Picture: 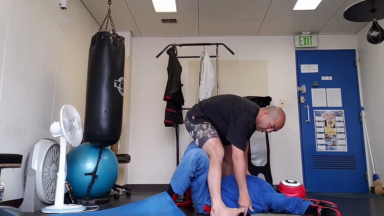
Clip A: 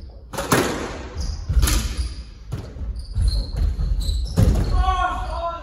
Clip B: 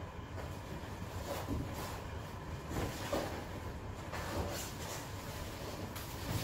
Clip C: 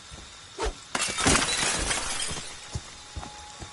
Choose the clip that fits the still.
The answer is B